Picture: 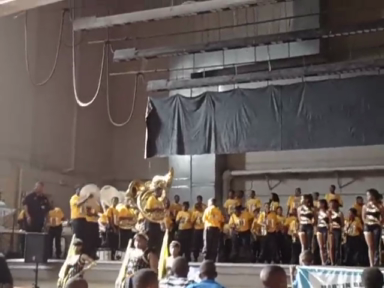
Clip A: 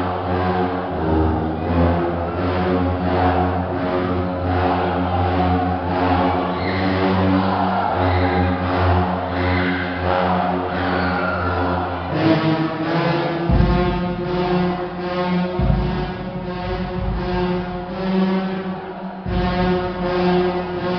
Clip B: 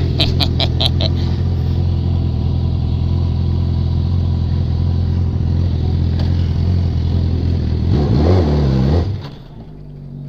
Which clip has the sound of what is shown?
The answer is A